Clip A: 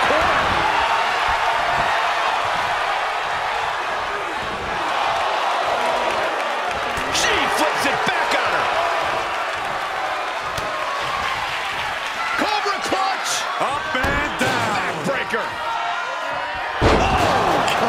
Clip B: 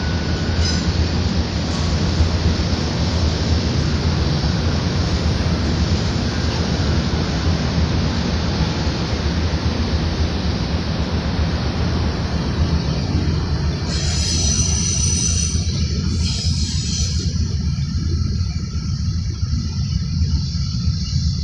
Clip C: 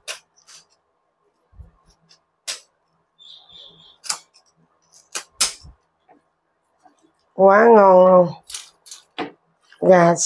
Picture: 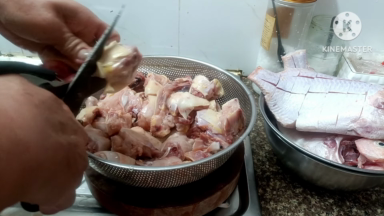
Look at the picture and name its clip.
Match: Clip C